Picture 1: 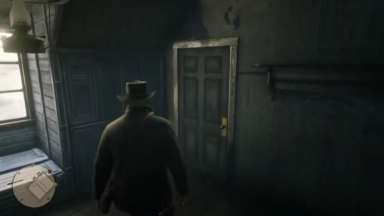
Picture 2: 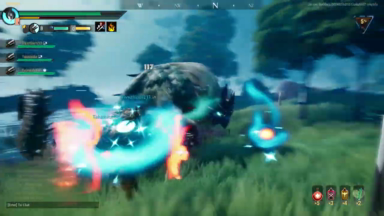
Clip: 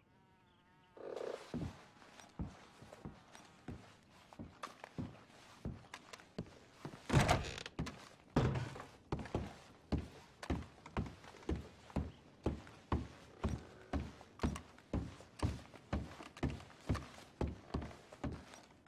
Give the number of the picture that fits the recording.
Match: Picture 1